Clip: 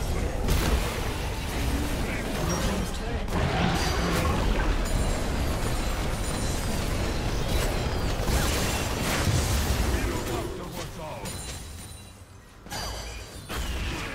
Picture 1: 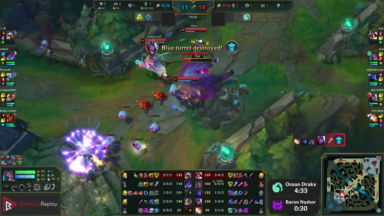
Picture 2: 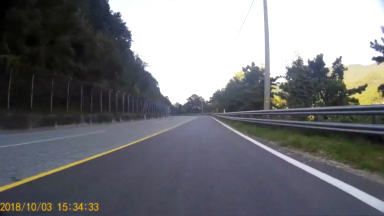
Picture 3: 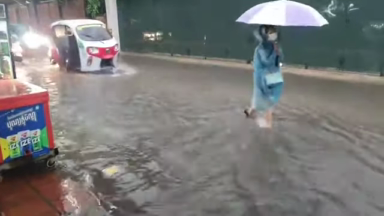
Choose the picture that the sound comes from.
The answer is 1